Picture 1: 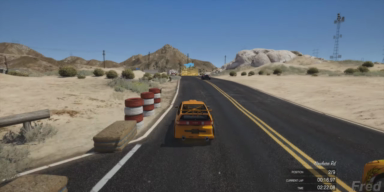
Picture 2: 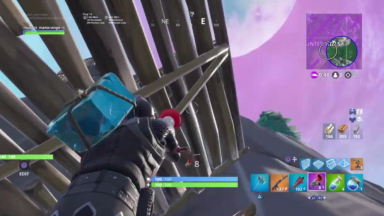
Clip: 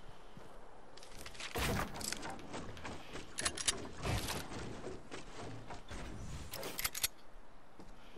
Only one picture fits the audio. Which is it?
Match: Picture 2